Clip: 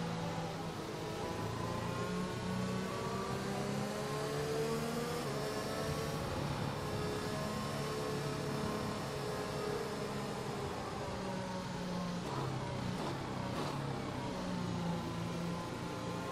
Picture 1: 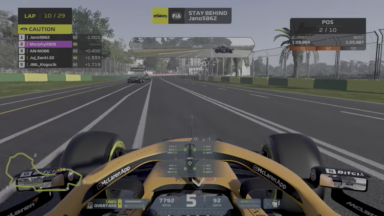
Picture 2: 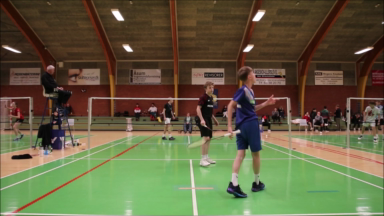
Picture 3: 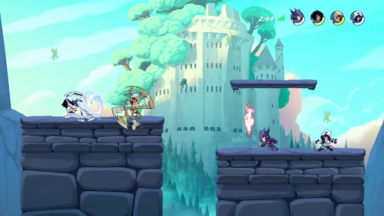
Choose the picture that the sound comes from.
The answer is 1